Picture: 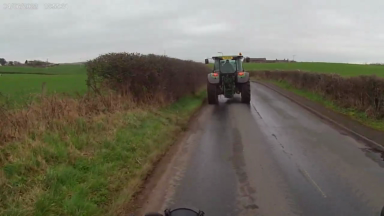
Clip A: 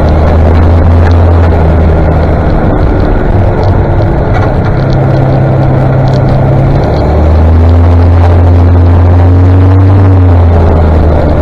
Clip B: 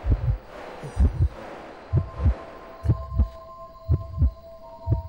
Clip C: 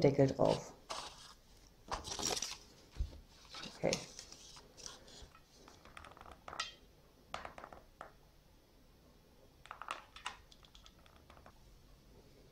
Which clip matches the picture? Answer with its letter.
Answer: A